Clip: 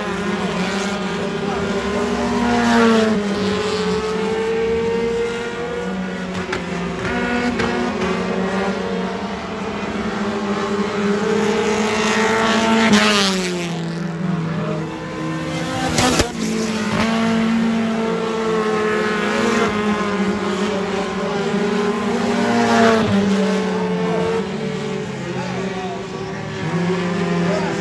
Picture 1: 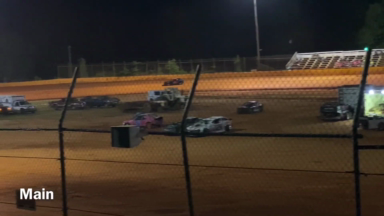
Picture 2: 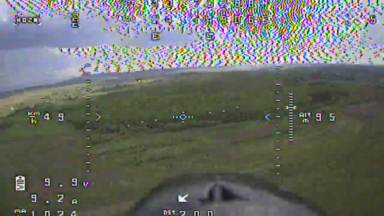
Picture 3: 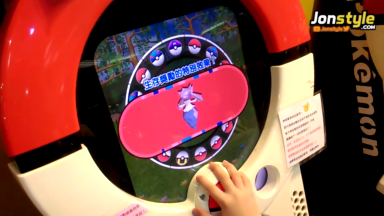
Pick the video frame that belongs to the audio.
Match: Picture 1